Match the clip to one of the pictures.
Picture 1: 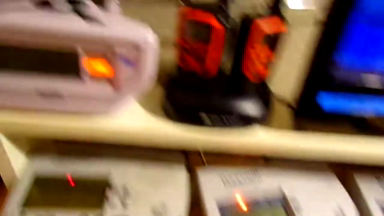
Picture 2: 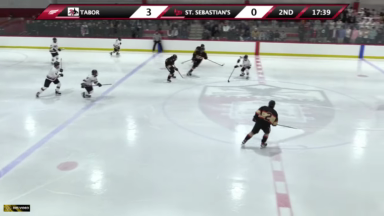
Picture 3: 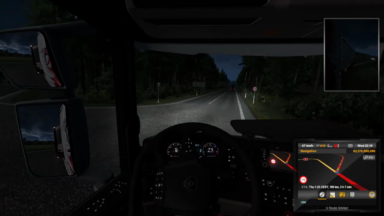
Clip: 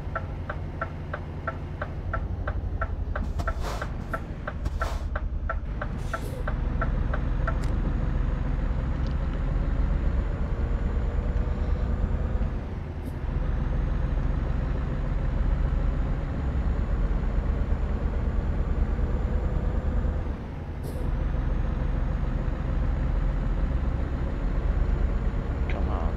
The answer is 3